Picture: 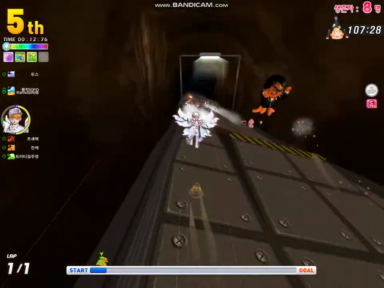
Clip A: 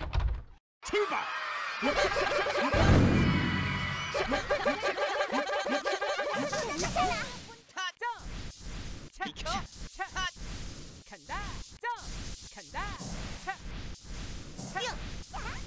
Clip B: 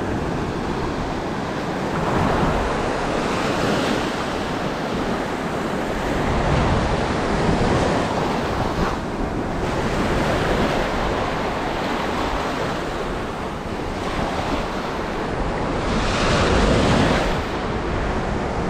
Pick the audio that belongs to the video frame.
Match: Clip A